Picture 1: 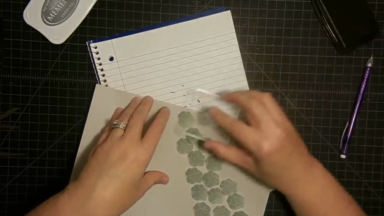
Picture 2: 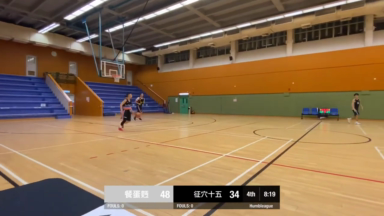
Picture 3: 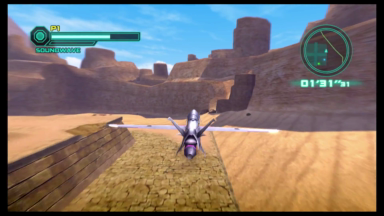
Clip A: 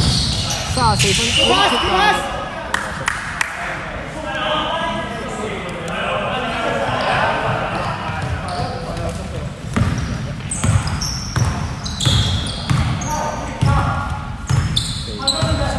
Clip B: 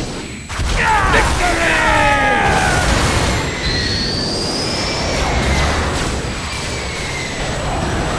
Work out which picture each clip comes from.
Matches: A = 2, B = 3